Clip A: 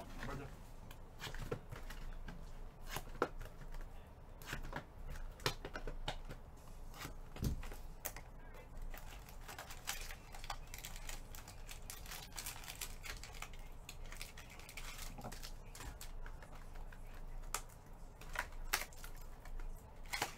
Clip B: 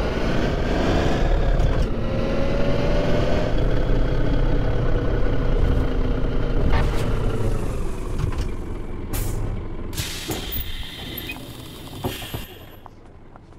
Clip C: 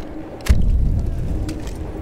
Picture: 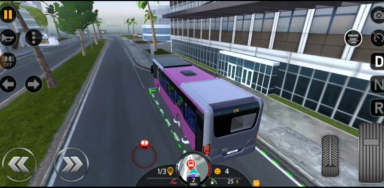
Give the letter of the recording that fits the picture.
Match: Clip B